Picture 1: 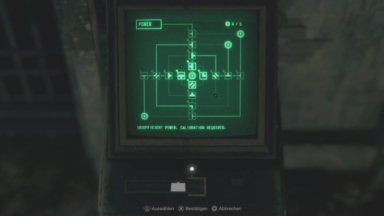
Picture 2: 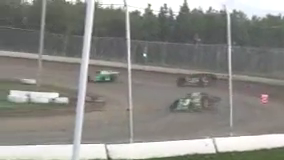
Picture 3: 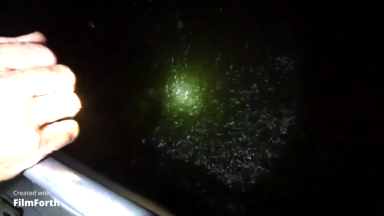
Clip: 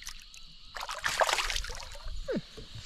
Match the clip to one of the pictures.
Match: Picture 3